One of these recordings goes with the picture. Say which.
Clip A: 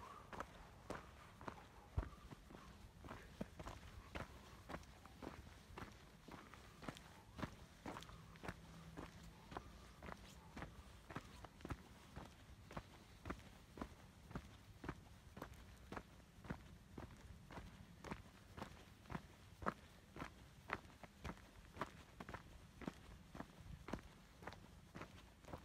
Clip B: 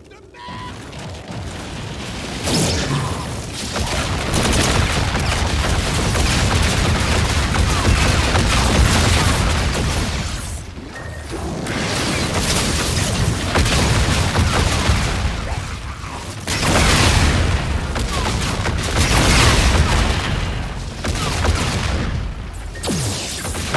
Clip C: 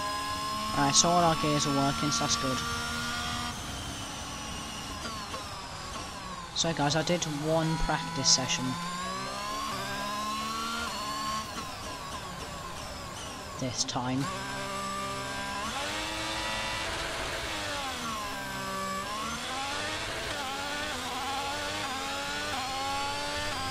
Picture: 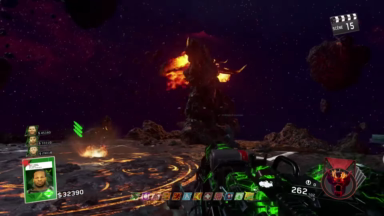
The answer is B